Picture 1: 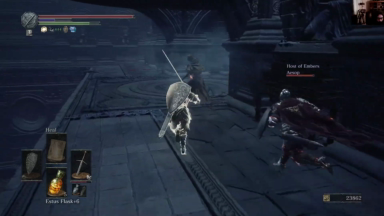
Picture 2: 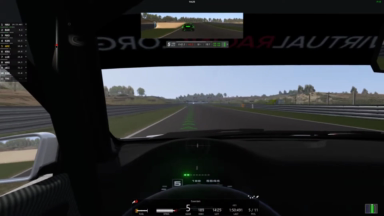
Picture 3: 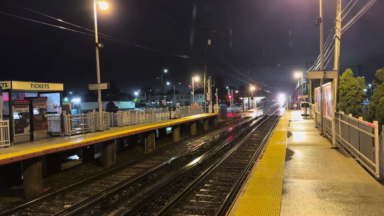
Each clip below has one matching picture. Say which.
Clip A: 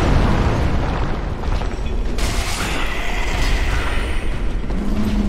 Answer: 1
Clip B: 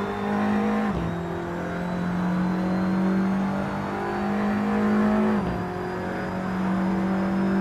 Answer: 2